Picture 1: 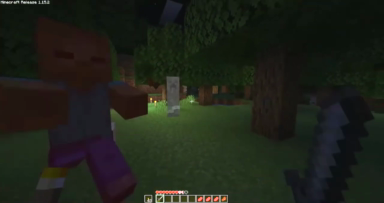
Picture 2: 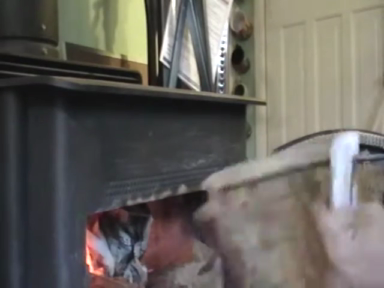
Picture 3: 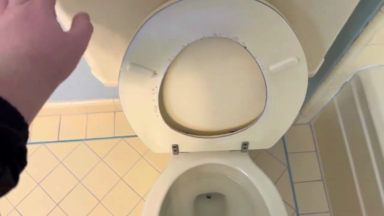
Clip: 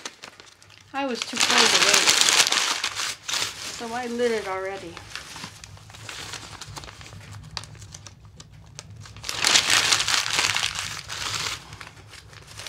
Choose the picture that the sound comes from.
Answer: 2